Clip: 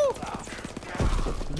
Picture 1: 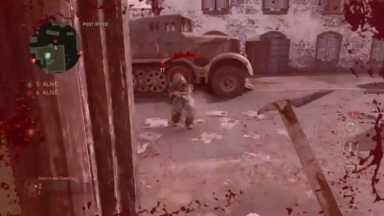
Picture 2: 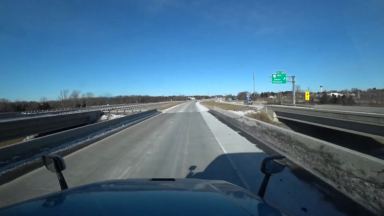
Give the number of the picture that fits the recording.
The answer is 1